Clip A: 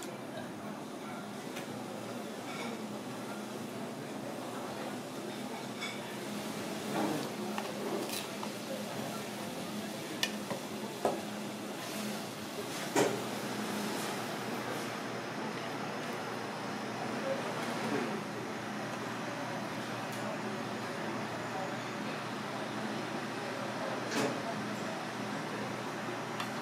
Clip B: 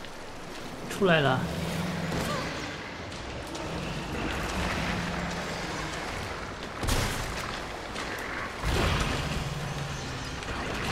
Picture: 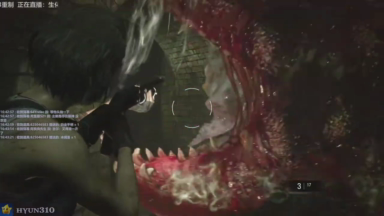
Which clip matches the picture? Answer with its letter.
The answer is B